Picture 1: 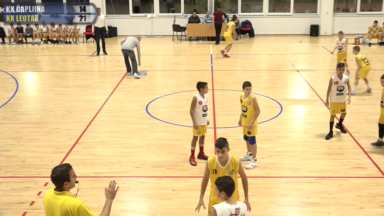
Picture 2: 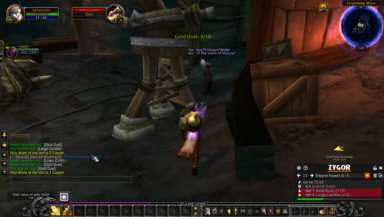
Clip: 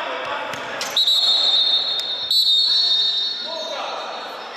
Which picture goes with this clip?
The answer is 1